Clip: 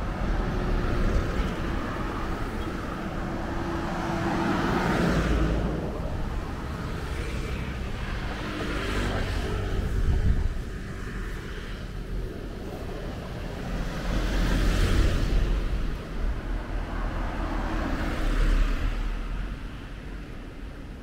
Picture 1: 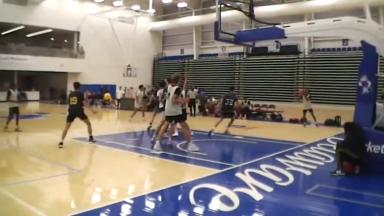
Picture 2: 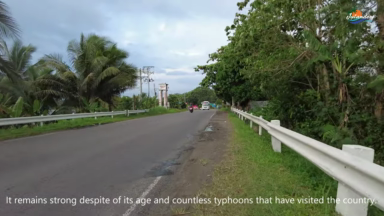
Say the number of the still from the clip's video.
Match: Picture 2